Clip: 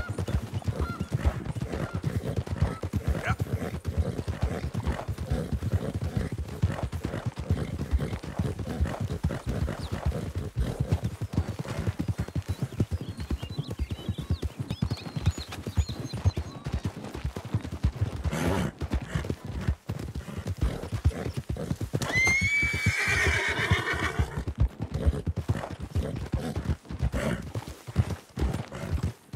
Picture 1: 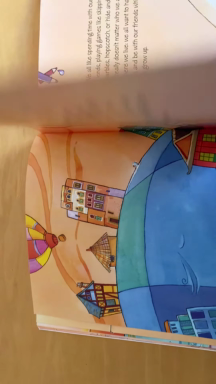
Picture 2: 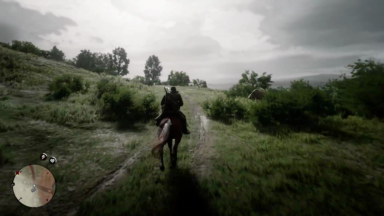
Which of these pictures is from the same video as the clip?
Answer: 2